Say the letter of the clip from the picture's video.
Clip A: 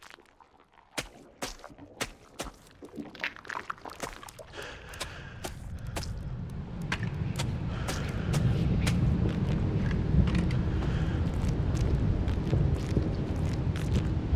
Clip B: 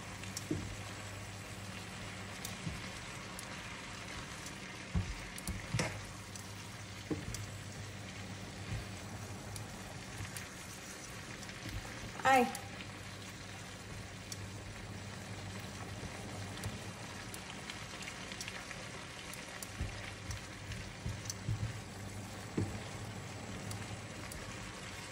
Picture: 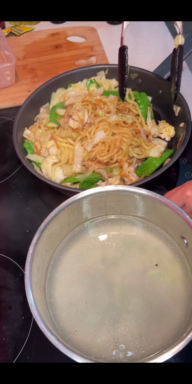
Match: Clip B